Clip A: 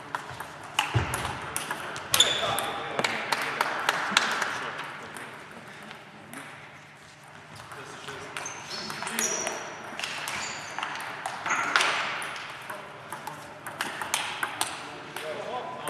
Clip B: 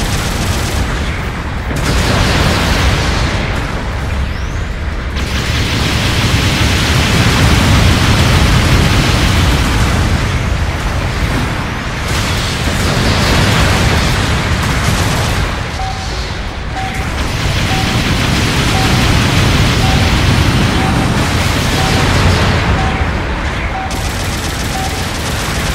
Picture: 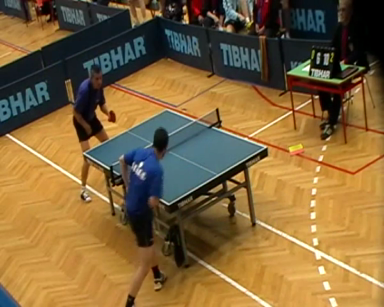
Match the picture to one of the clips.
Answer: A